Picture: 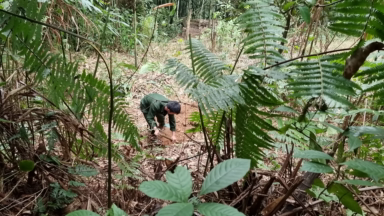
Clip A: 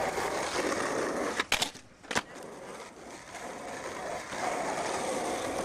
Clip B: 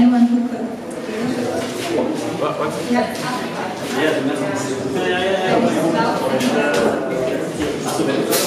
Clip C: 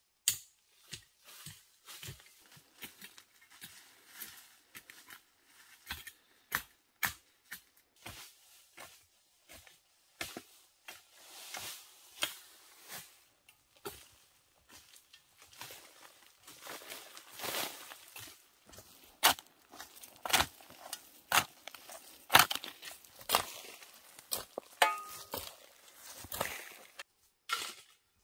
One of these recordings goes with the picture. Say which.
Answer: C